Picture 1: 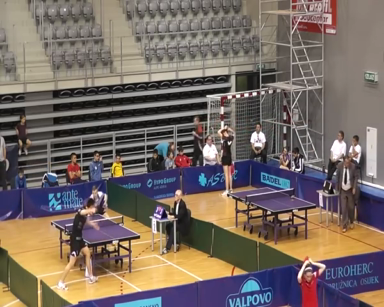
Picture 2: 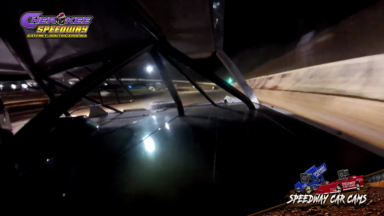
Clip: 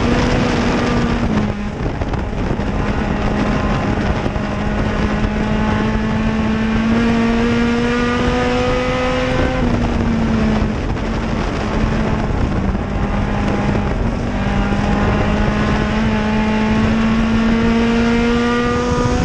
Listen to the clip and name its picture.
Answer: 2